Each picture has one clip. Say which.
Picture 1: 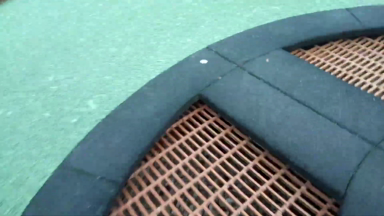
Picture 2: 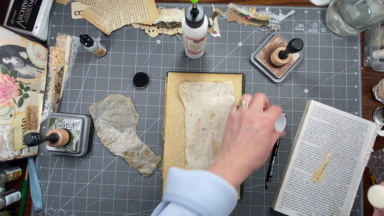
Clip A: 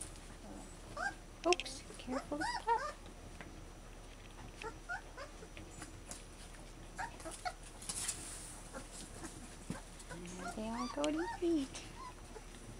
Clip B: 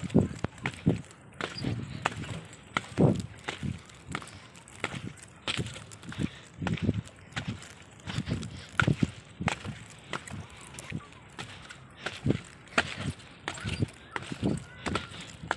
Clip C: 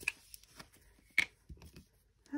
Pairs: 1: B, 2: C